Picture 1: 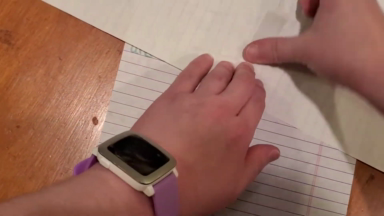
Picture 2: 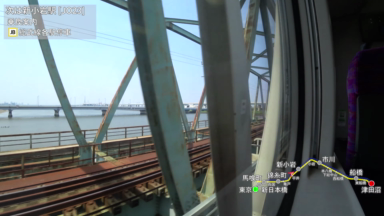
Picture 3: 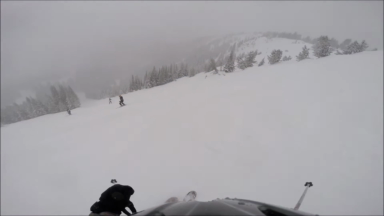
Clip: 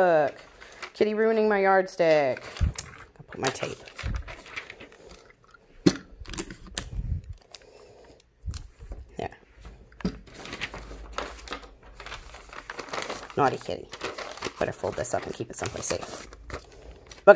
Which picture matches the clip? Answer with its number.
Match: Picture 1